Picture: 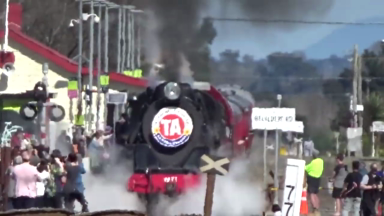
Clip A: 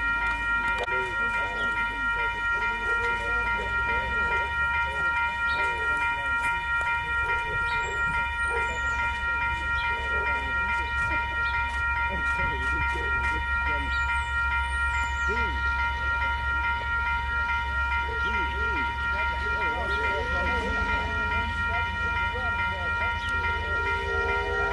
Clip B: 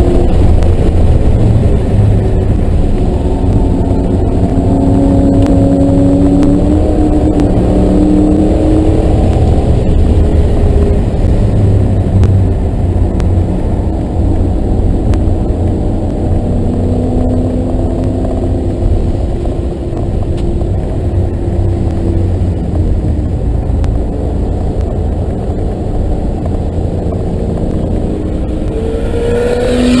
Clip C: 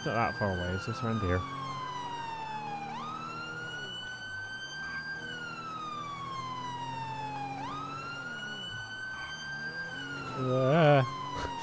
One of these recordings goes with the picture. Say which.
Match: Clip A